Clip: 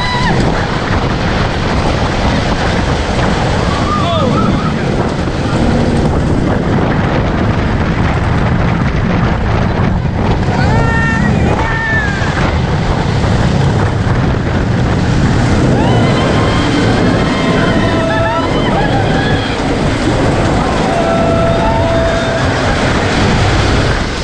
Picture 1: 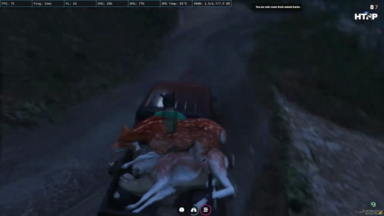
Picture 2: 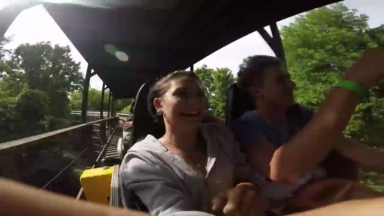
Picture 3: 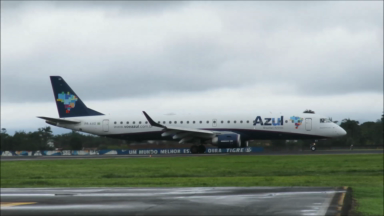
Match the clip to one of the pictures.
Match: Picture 2